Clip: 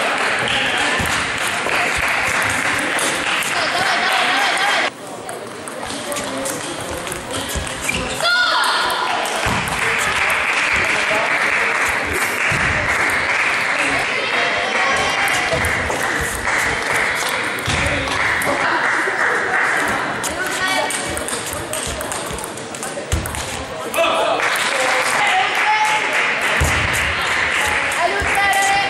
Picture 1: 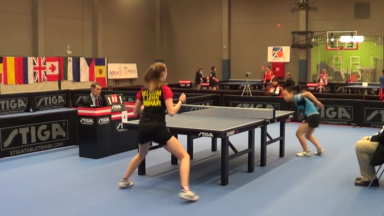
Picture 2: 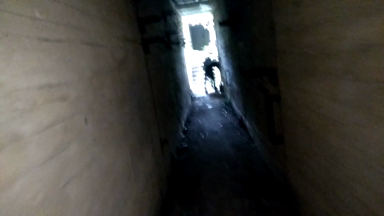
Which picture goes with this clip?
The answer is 1